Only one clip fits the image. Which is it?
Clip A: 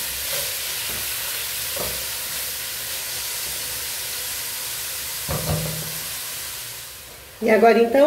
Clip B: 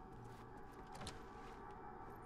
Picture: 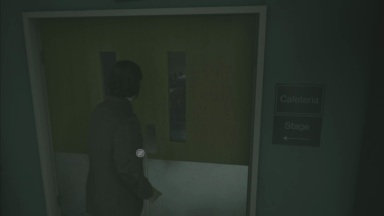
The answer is B